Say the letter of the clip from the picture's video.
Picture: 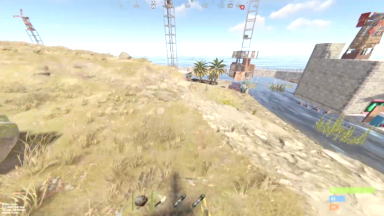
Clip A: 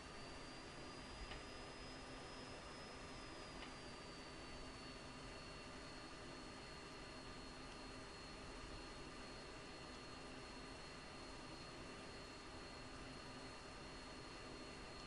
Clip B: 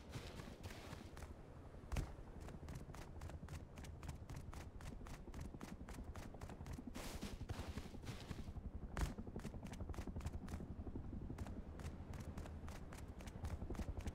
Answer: B